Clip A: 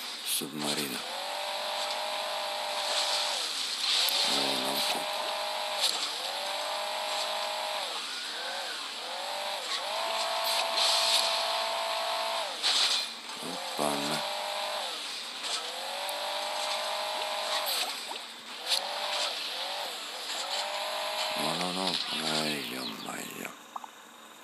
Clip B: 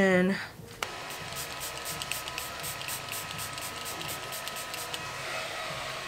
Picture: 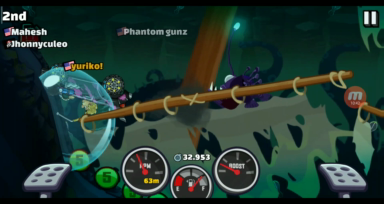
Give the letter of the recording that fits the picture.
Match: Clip A